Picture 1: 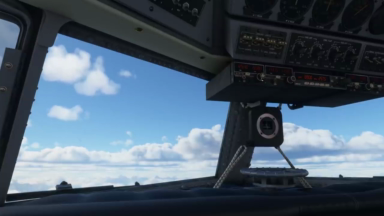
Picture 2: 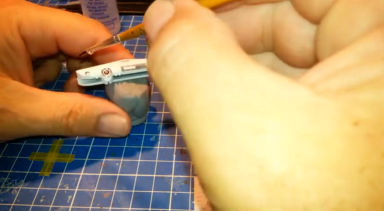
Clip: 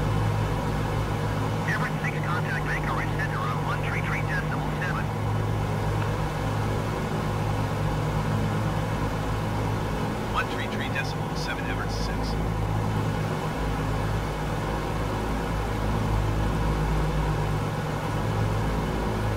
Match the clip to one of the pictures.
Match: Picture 1